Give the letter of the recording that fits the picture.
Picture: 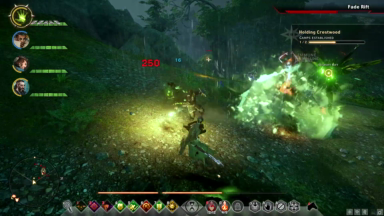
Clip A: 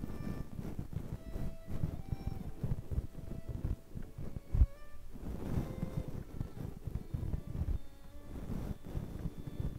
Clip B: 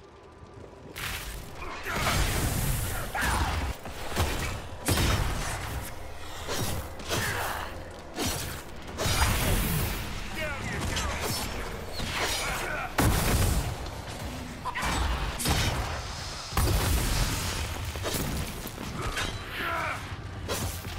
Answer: B